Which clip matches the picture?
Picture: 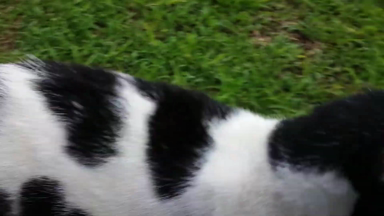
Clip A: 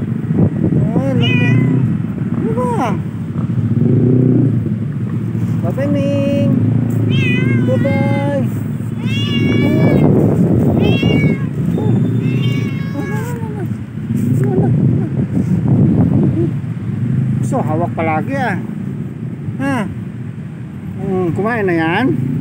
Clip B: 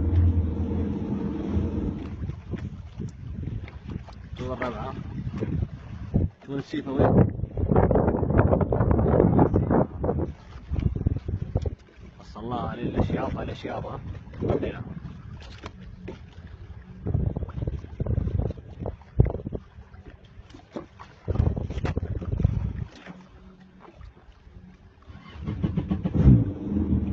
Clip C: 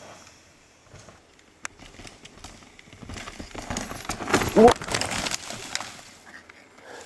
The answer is A